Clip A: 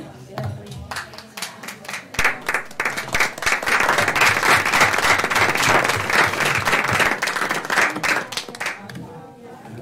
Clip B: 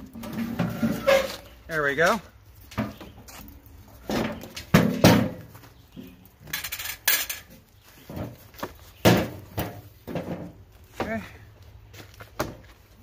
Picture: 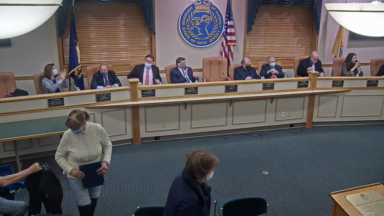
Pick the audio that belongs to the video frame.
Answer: A